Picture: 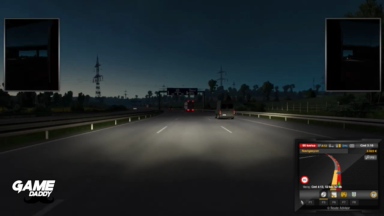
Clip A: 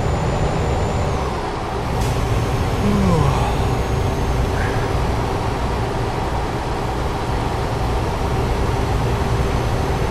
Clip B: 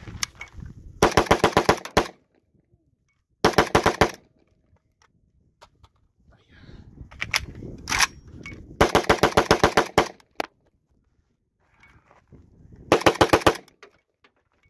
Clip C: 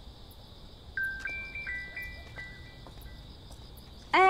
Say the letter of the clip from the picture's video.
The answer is A